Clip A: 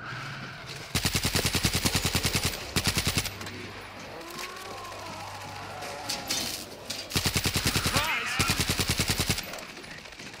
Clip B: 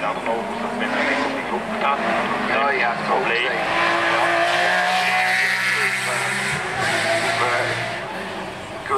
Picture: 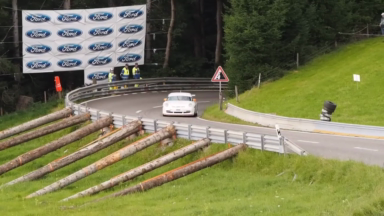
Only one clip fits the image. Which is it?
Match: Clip B